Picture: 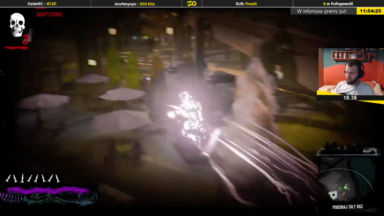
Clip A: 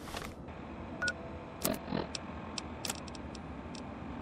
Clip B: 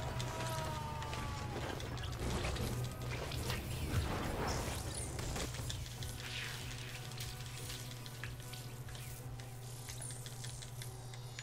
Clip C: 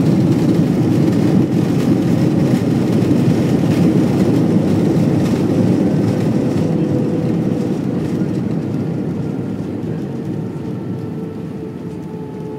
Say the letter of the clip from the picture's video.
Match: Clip B